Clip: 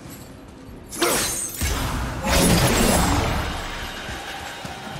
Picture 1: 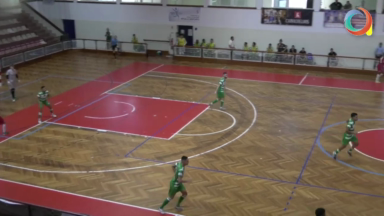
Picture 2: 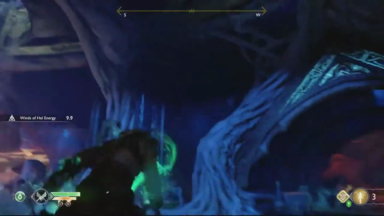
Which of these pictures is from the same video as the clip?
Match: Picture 2